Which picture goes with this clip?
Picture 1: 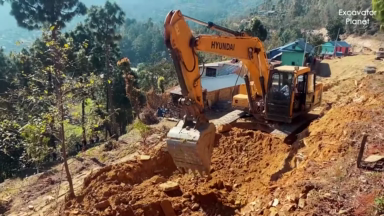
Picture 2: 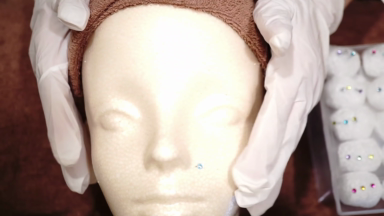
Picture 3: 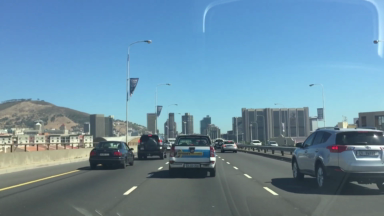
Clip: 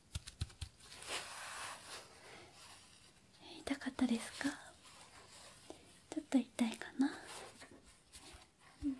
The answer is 2